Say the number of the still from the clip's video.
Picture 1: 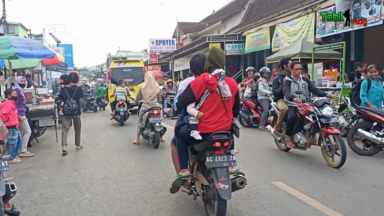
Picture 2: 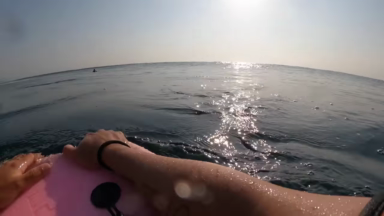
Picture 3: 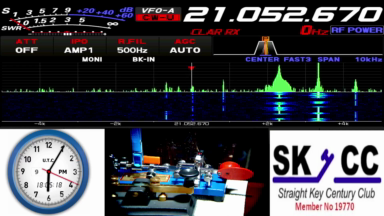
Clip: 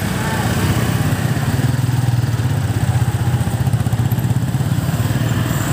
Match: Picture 1